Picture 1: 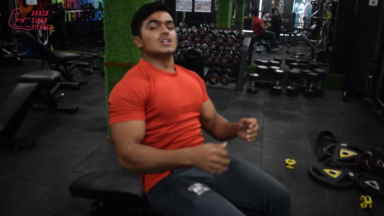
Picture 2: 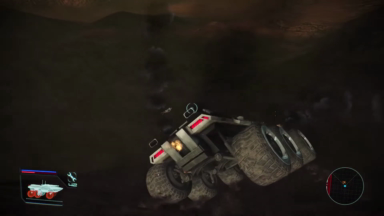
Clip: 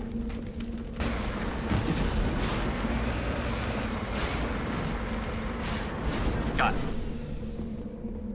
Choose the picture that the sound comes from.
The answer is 2